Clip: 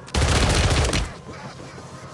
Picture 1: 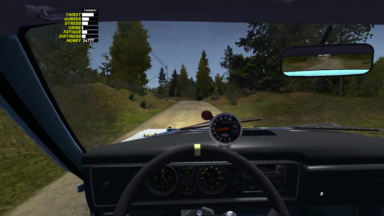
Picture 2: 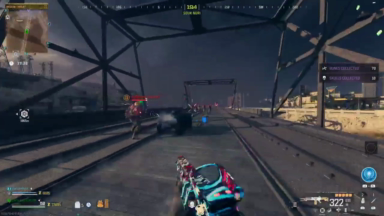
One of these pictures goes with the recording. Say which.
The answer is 2